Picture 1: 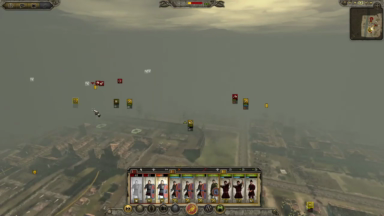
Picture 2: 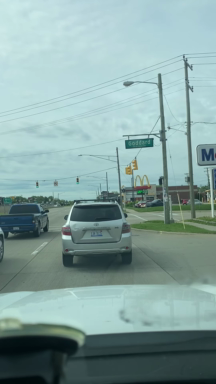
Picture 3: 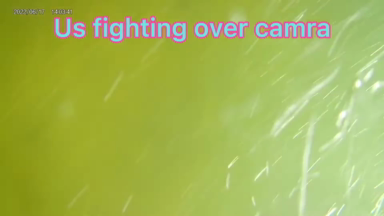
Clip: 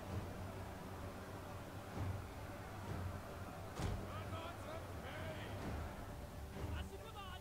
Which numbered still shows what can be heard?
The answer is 1